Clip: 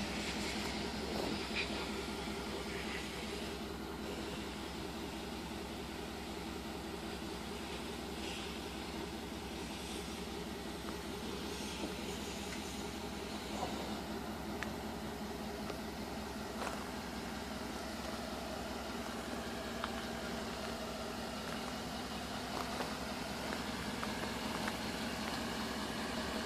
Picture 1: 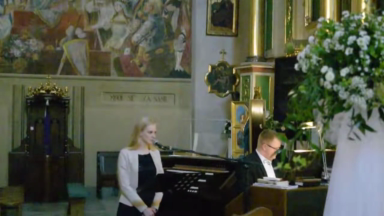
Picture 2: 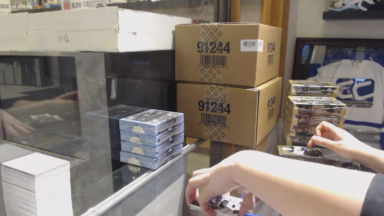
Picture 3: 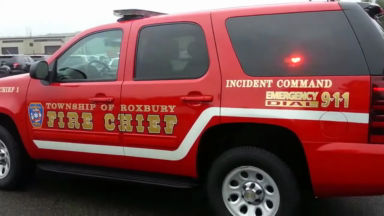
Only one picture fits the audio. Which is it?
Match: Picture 3